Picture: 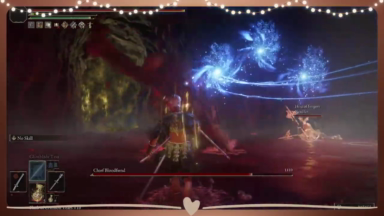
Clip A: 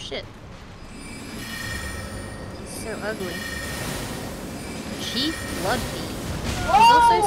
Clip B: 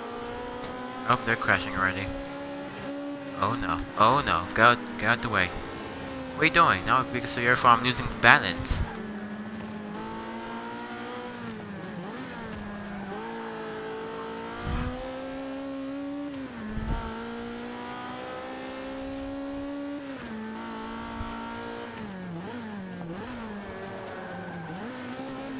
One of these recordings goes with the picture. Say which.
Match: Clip A